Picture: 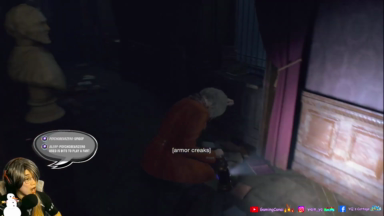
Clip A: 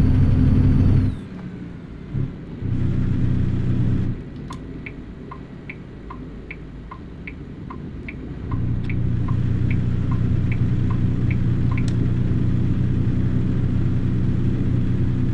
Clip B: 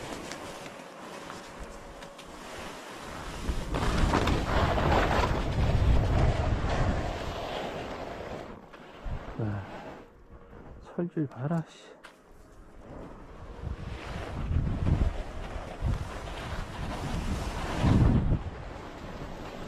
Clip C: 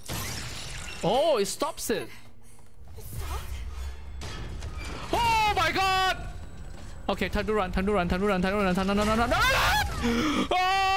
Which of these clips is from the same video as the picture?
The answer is C